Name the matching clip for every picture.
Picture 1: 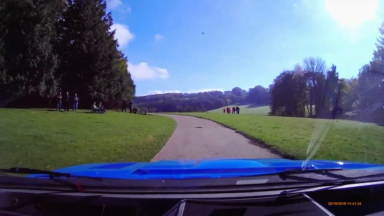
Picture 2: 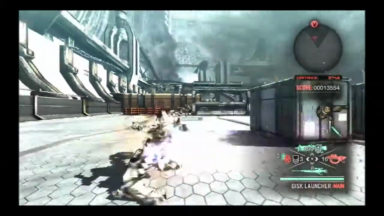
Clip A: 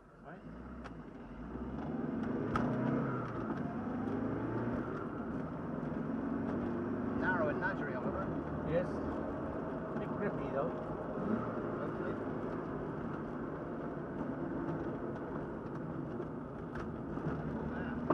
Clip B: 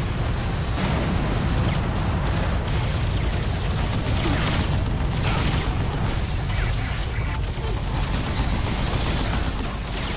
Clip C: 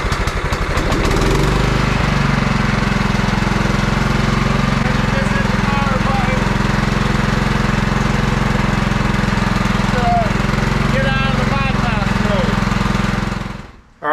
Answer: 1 A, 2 B